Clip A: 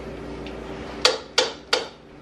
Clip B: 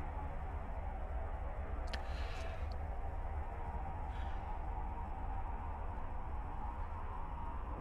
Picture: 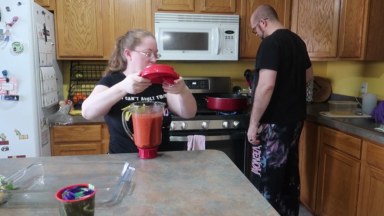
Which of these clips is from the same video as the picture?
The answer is A